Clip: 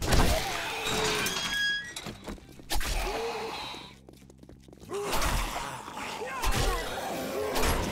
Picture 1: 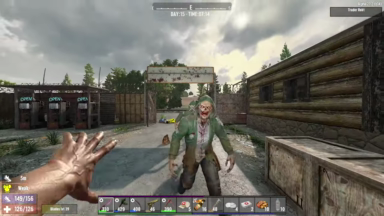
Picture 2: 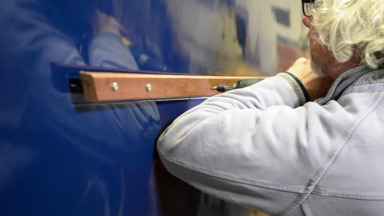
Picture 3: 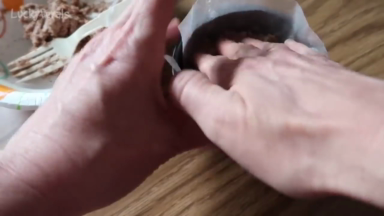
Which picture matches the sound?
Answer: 1